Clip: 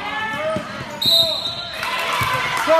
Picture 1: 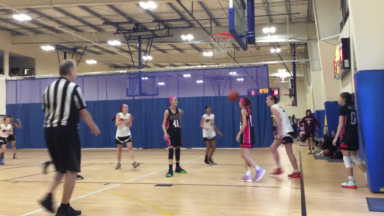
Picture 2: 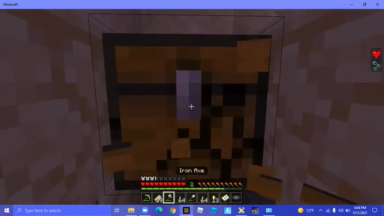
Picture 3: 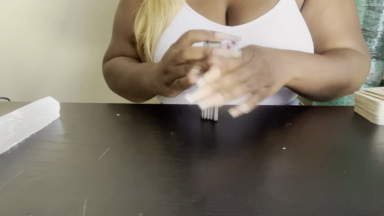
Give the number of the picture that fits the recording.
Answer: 1